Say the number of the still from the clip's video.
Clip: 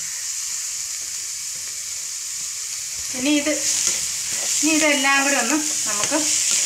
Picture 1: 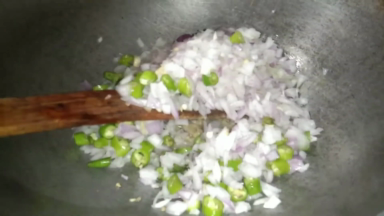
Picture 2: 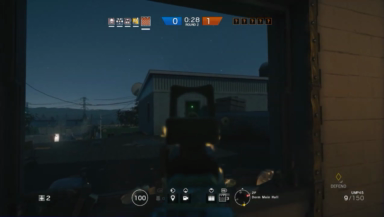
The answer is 1